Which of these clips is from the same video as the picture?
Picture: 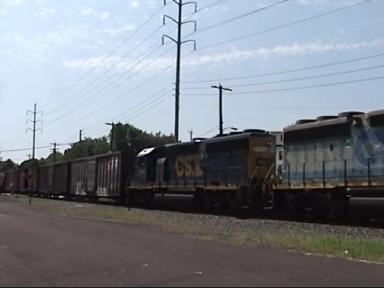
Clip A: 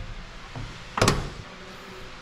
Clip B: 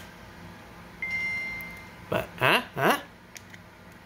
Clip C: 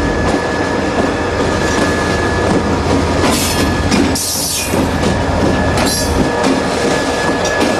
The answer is C